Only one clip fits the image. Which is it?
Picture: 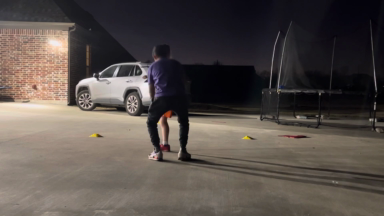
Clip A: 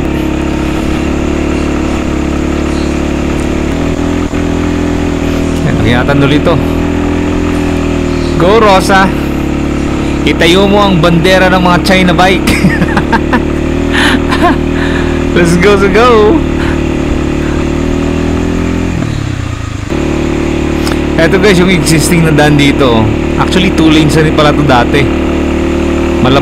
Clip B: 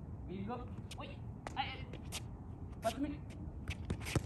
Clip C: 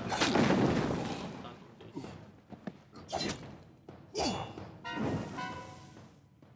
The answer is B